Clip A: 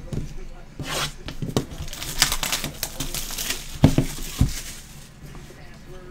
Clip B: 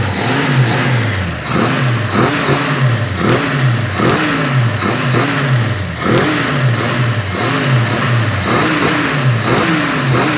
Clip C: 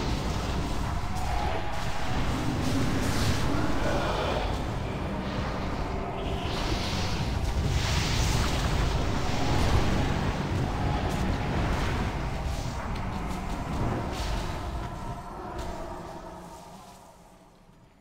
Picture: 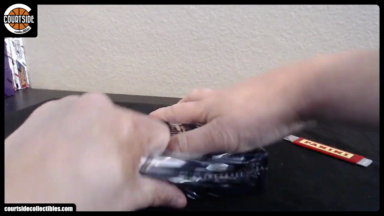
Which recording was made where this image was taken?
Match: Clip A